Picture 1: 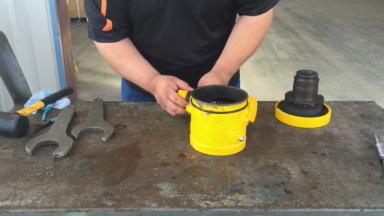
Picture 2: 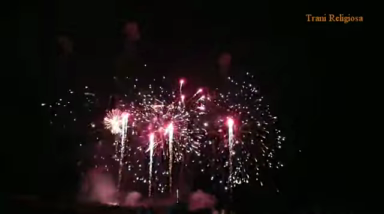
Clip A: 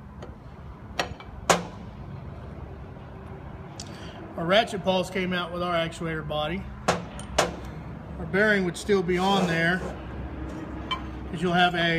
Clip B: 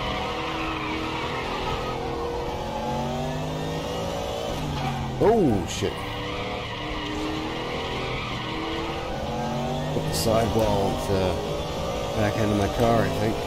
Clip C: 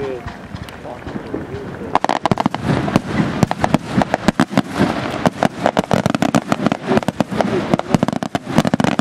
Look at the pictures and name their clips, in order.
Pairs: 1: A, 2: C